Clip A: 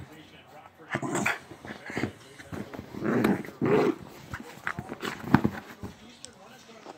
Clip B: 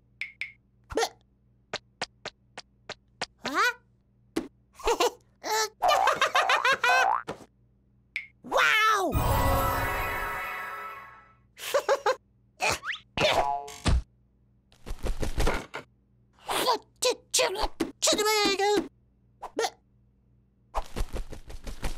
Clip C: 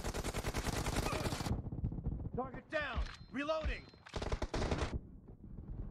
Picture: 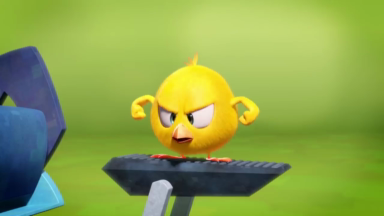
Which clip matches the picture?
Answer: B